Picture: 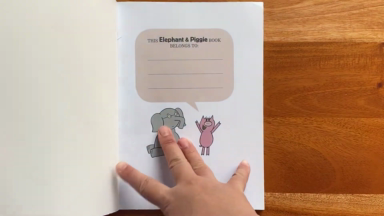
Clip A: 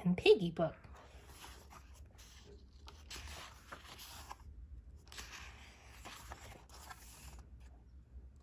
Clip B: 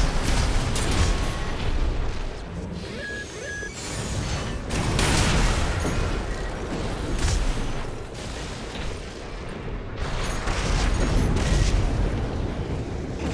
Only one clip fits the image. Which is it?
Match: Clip A